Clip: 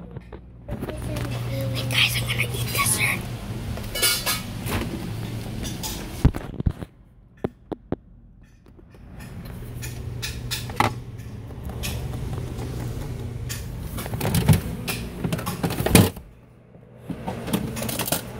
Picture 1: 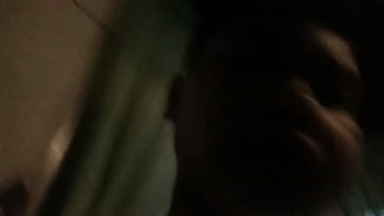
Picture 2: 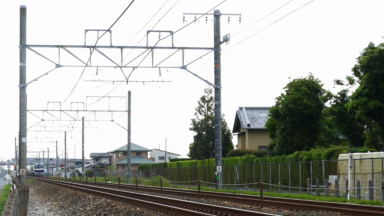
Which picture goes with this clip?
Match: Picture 1